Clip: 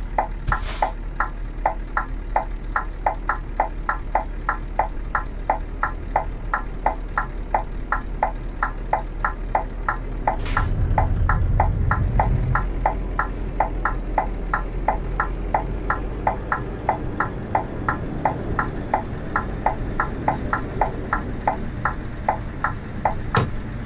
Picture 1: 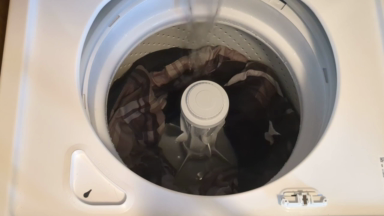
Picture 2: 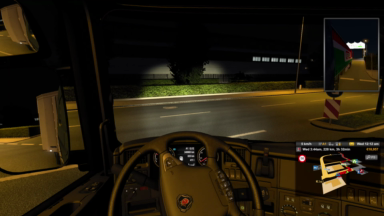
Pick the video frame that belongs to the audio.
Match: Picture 2